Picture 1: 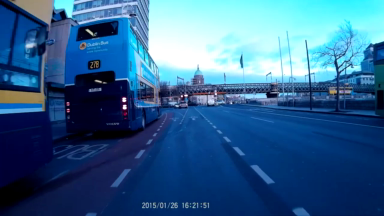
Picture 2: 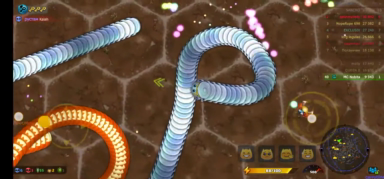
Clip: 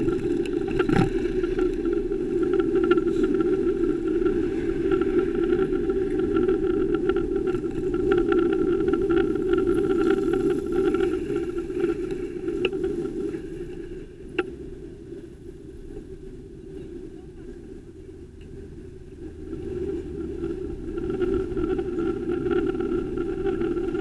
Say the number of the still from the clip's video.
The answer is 1